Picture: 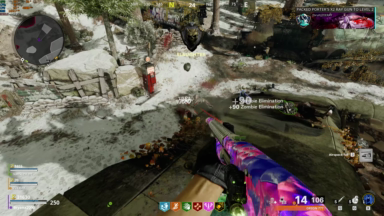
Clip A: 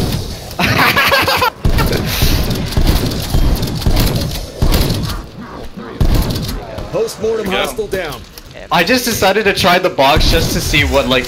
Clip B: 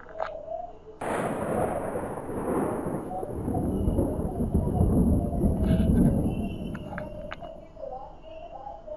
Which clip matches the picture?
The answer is A